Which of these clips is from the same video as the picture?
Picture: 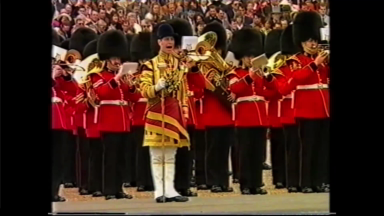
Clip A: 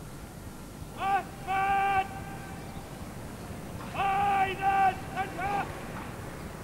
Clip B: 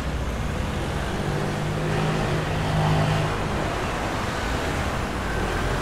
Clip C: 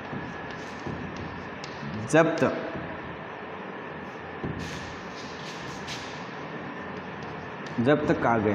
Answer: A